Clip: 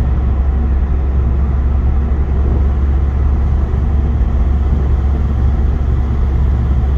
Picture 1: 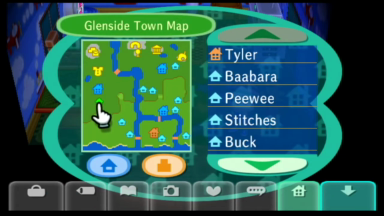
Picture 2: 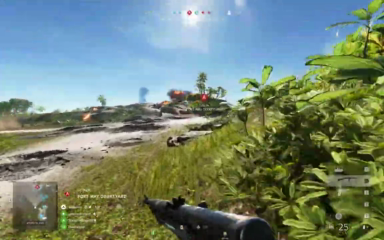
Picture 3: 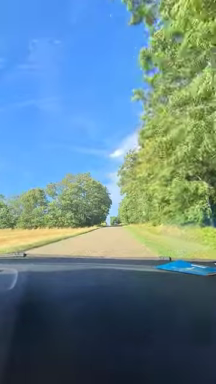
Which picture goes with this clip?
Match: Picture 3